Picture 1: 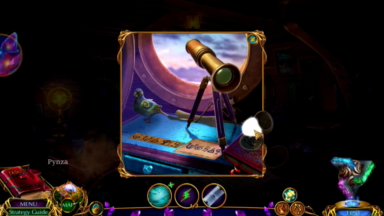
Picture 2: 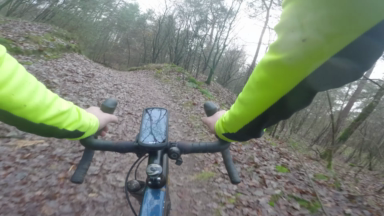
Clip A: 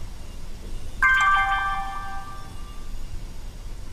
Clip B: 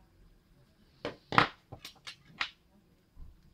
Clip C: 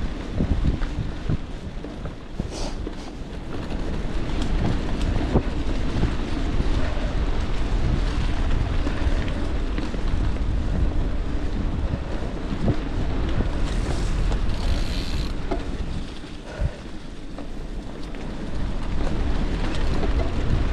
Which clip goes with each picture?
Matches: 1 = A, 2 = C